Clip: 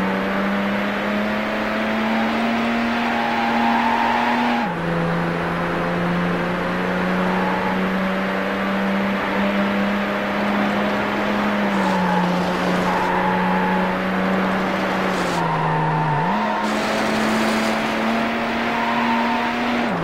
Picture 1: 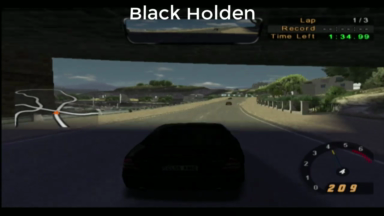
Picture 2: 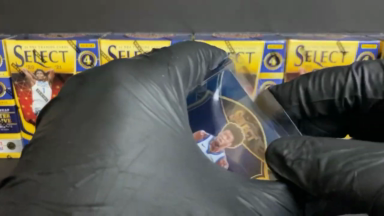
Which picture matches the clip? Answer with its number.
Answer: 1